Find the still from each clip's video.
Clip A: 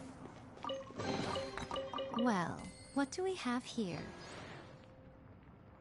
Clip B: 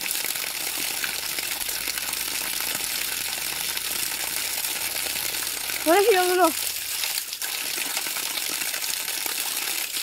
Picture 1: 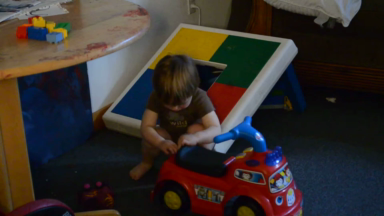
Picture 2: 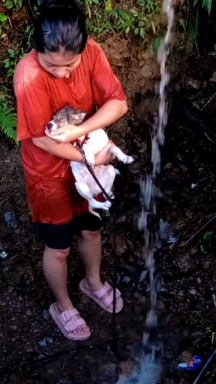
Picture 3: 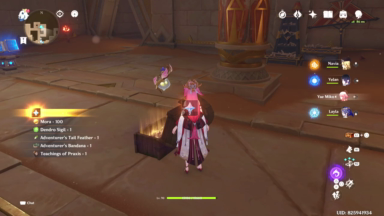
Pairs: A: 3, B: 2